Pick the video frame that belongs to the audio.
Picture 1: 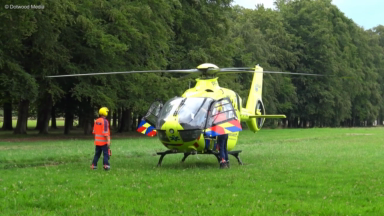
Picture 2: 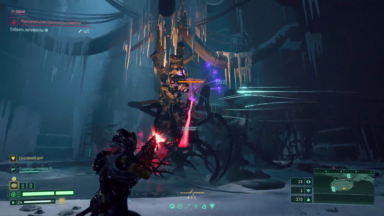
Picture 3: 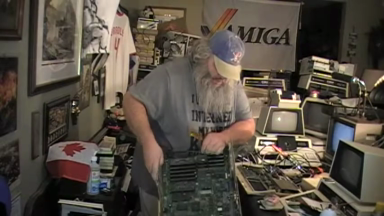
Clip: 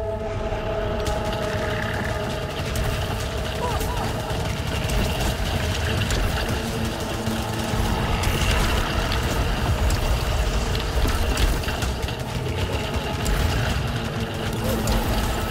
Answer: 2